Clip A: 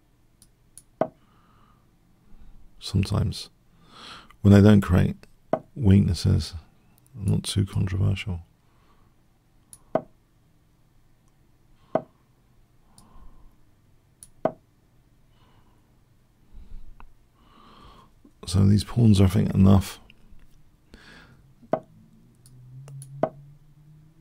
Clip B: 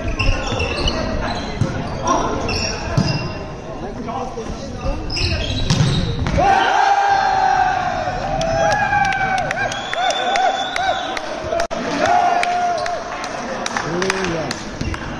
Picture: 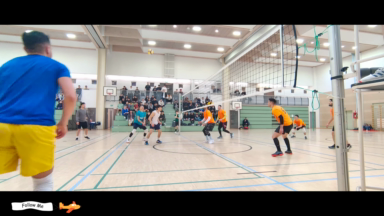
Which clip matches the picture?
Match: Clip B